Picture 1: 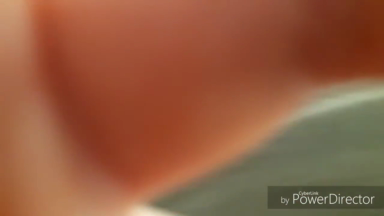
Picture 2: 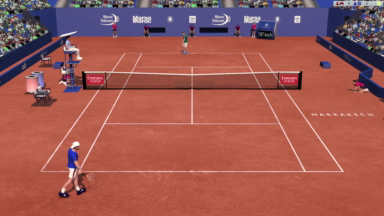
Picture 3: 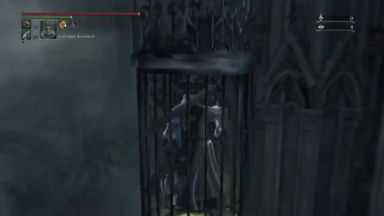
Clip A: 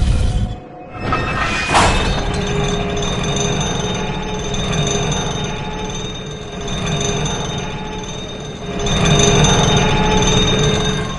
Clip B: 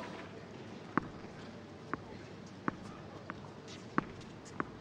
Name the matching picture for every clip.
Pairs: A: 3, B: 2